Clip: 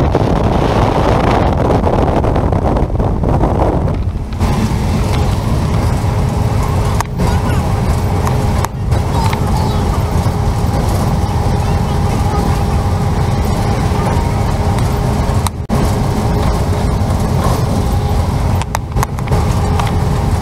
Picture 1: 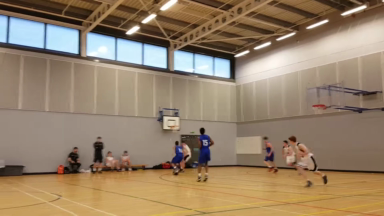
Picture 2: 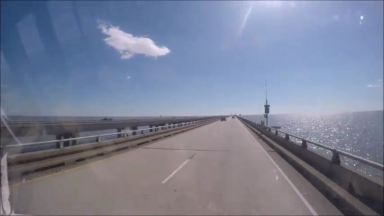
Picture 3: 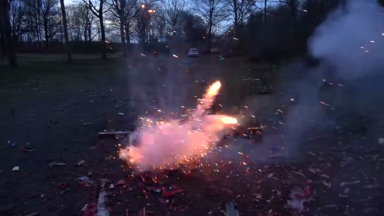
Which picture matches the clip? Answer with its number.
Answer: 2